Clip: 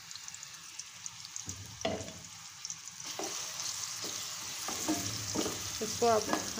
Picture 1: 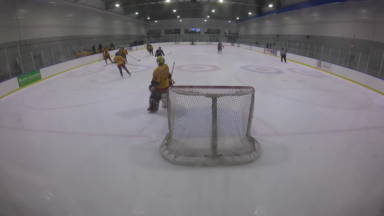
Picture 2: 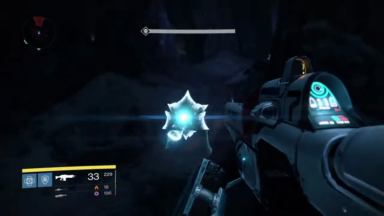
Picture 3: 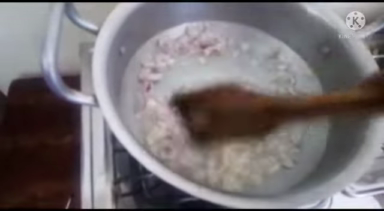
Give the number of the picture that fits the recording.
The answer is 3